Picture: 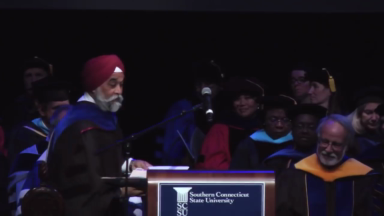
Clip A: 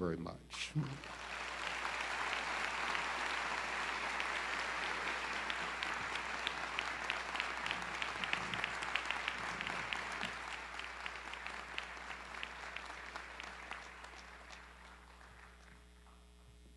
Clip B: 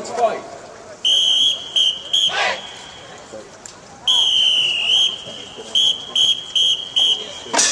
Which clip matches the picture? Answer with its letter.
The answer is A